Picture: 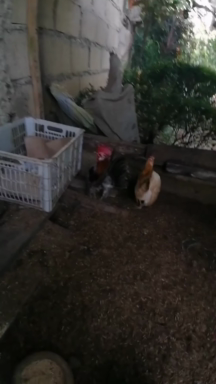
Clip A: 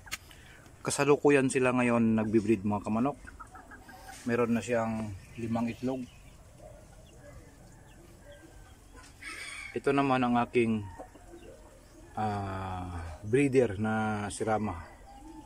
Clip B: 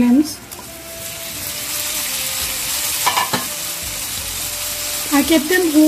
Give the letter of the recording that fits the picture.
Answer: A